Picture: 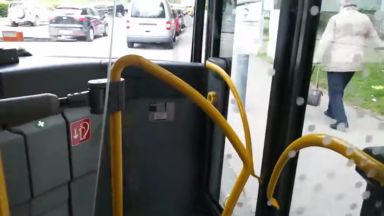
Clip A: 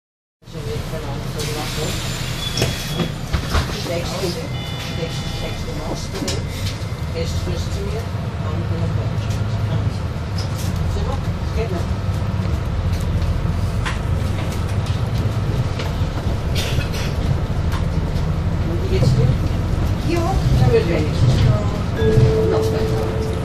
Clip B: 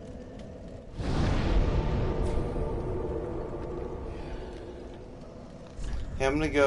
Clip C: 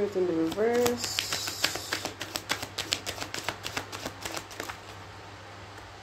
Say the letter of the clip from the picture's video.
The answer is A